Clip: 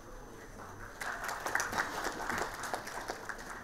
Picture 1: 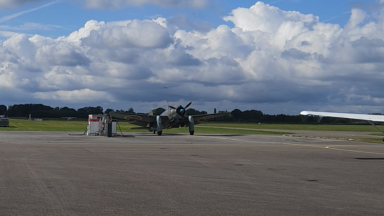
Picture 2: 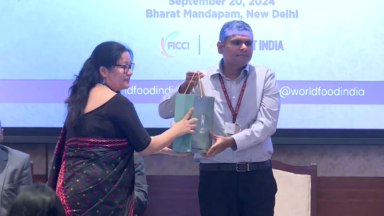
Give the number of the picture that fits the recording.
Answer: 2